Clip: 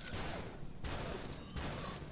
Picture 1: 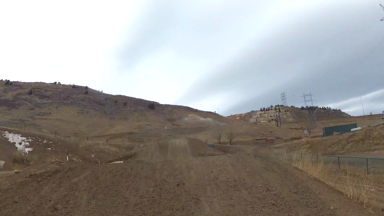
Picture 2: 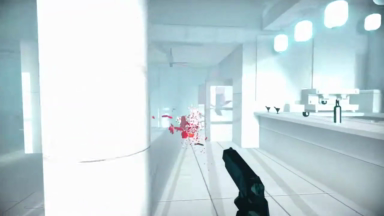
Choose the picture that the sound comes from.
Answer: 2